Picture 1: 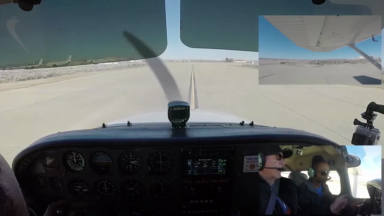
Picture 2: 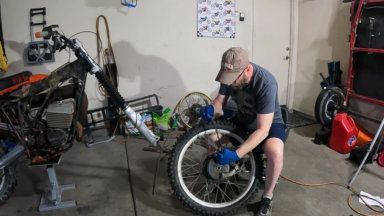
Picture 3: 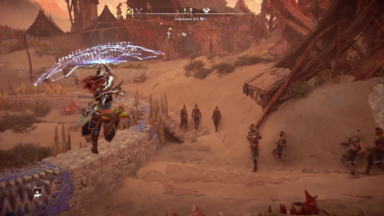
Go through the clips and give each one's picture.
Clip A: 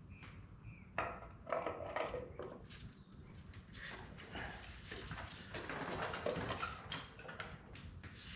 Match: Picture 2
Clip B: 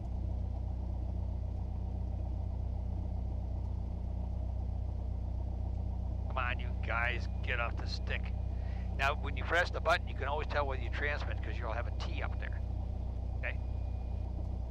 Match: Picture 1